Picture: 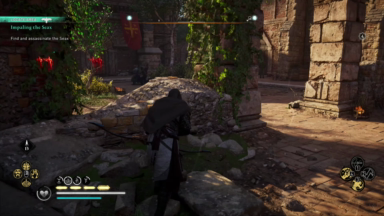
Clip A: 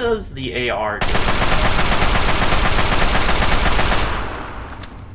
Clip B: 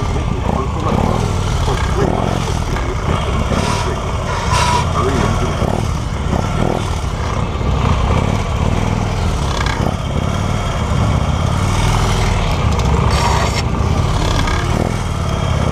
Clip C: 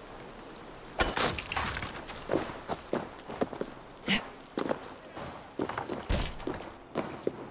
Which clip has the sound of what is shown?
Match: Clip C